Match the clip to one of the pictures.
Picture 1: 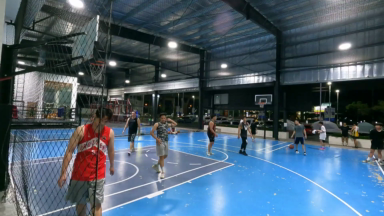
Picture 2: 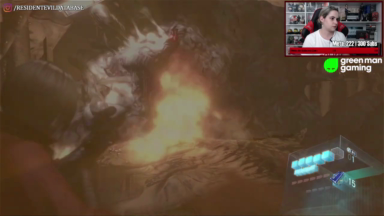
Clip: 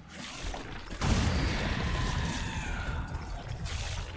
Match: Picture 2